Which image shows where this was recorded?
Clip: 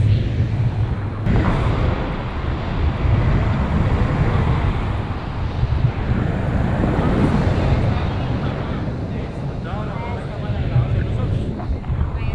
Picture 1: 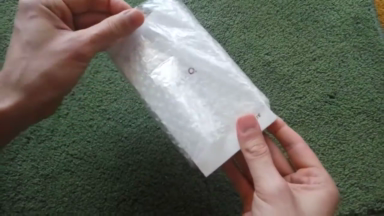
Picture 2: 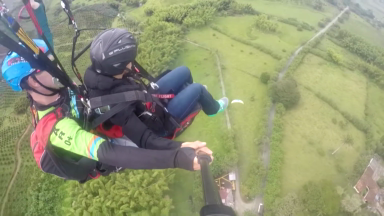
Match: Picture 2